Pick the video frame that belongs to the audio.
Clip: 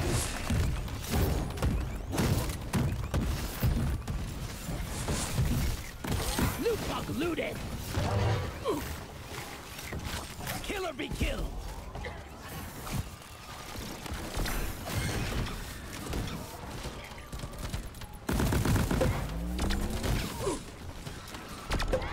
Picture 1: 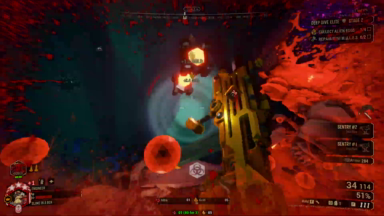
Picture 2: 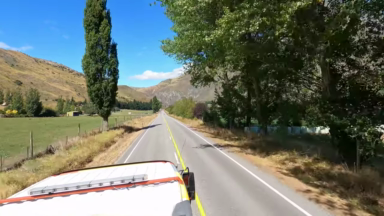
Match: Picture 1